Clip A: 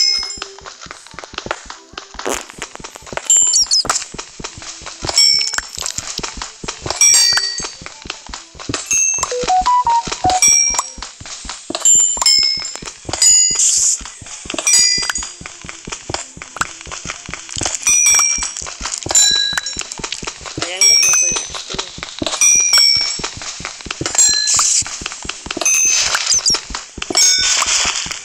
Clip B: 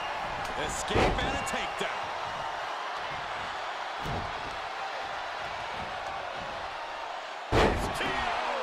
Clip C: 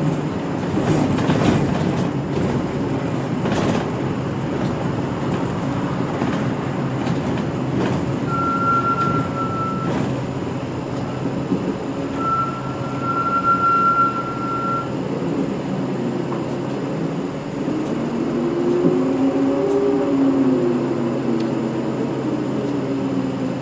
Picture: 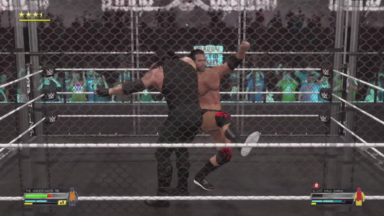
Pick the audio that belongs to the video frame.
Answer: B